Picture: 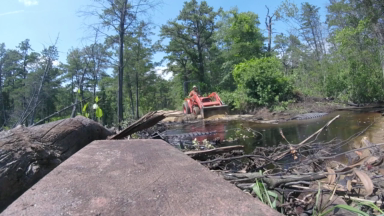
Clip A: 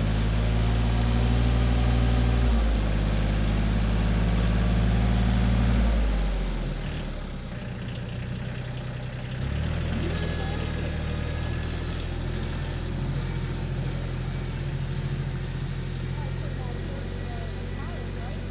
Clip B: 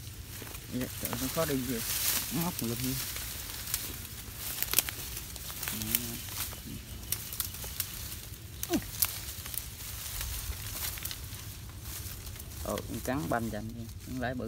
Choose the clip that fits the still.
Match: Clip A